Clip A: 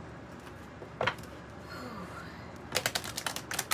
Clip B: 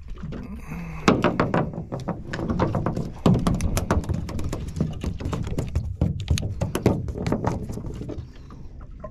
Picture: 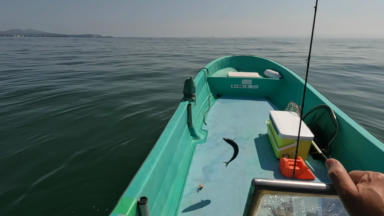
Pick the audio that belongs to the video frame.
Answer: B